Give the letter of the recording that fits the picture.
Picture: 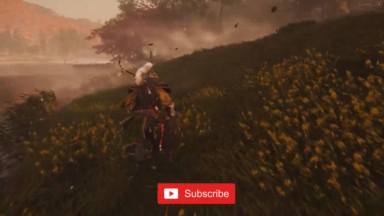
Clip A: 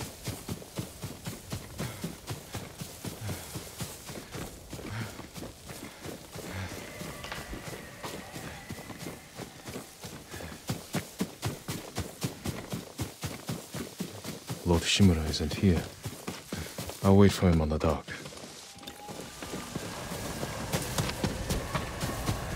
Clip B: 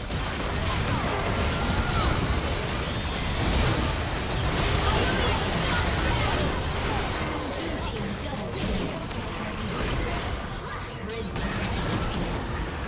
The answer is A